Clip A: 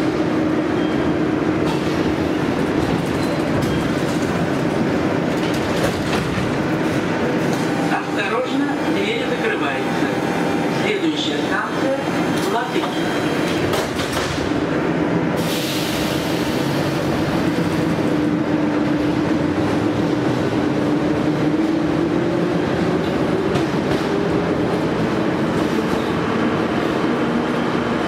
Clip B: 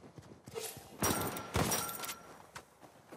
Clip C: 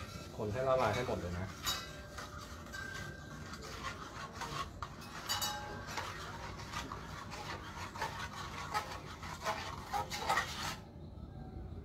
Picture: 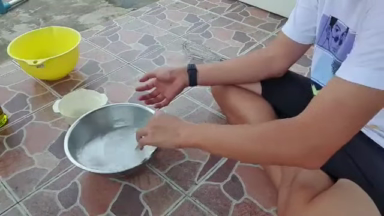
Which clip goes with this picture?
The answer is C